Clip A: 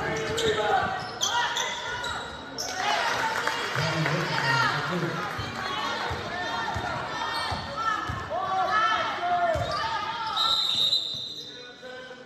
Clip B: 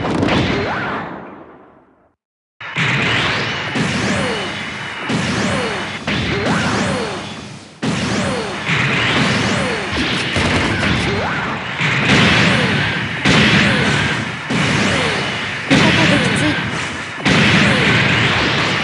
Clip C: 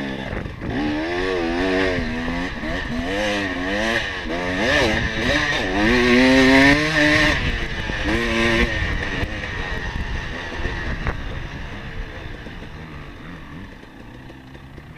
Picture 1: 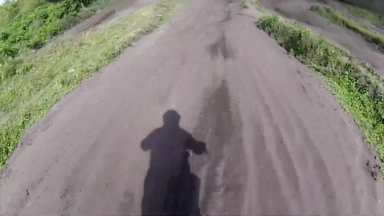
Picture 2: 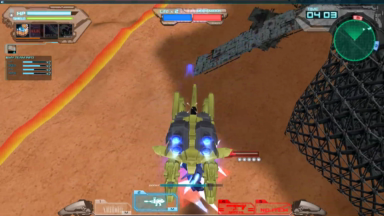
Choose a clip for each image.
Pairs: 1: C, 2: B